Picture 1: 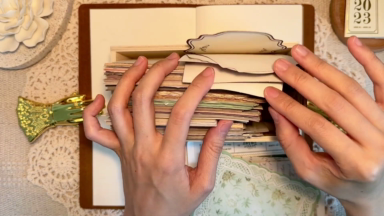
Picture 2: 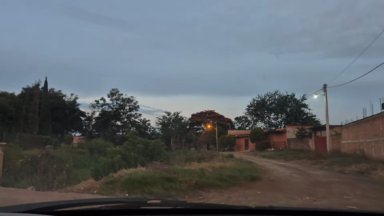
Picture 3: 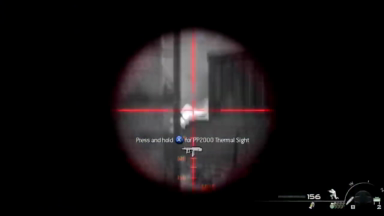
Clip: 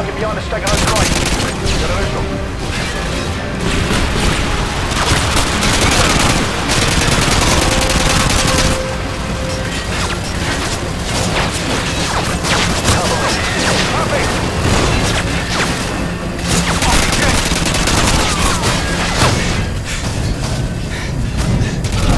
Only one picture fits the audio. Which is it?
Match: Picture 3